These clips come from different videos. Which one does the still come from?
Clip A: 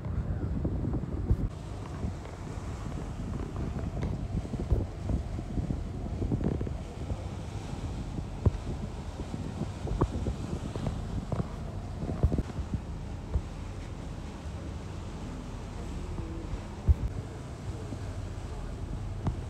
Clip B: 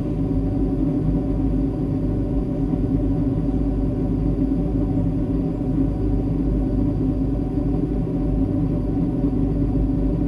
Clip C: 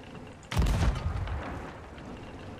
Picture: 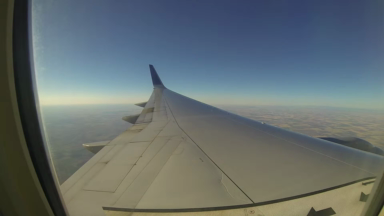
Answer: B